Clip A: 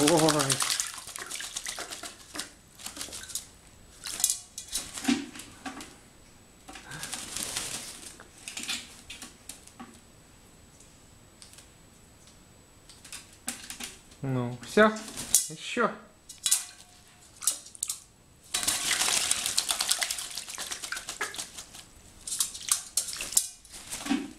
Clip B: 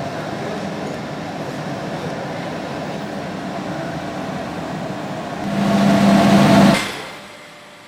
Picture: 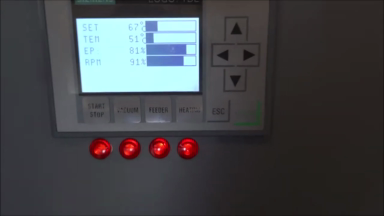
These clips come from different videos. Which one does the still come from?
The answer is B